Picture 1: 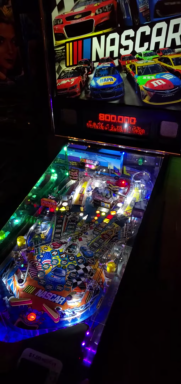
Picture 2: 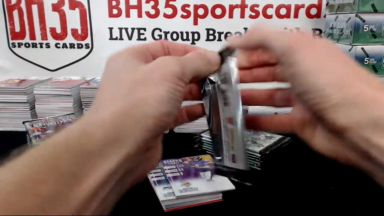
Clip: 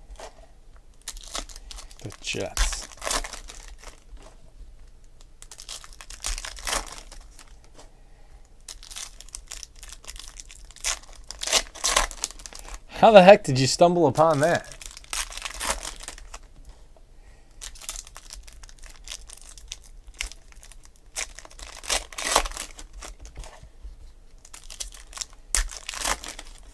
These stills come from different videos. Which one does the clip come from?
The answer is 2